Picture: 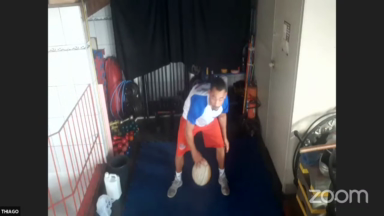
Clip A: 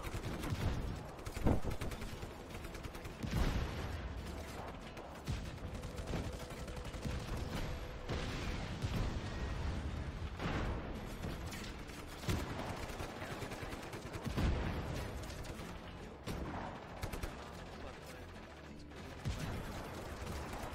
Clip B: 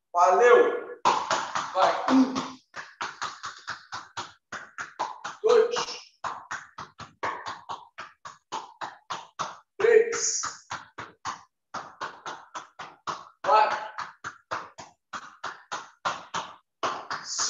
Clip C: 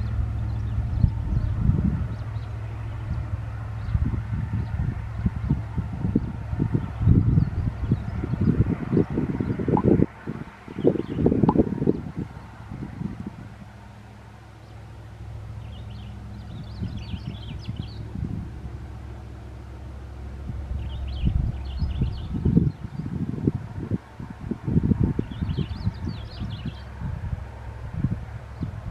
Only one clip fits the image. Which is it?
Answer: B